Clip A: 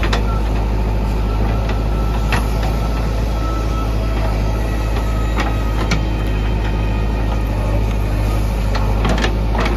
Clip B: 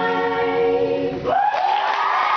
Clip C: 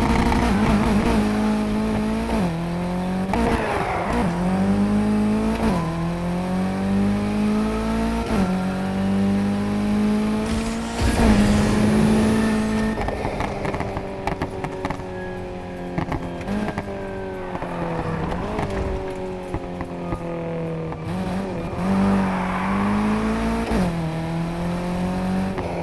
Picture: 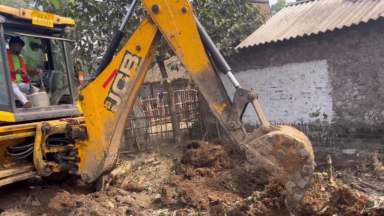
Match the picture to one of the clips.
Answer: A